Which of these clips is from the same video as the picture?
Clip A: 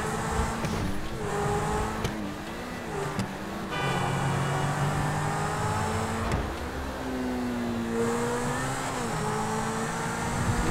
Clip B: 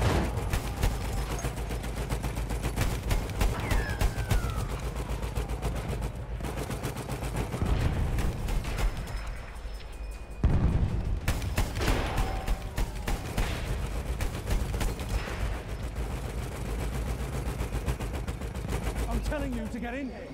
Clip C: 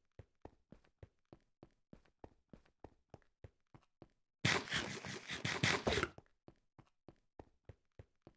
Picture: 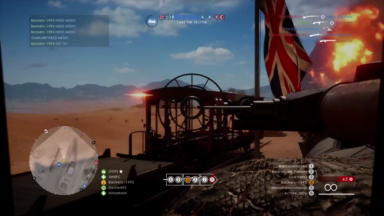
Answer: B